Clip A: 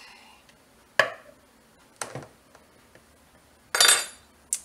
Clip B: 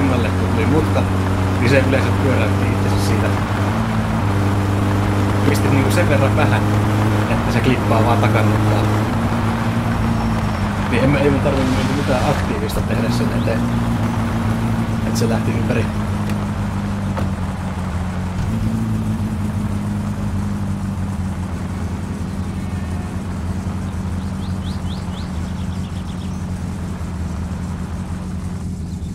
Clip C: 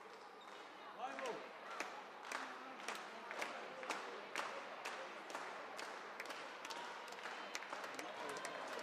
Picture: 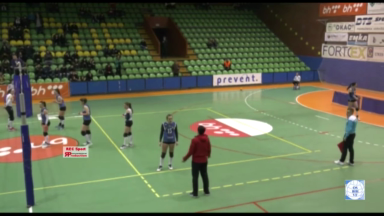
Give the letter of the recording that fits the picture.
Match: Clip C